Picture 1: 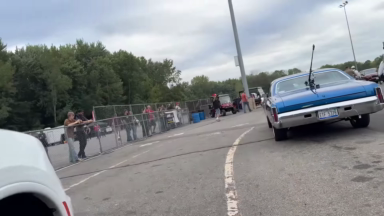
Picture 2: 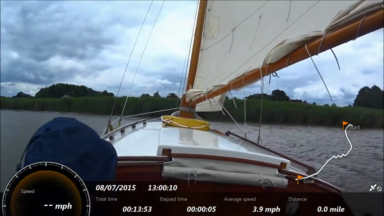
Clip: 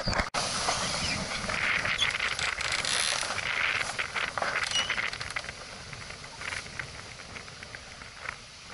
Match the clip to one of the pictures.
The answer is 2